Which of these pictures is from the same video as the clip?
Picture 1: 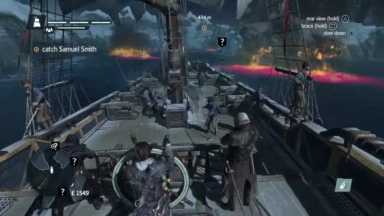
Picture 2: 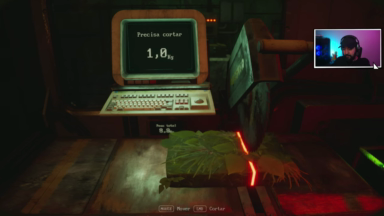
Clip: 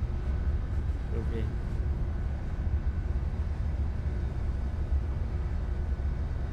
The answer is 2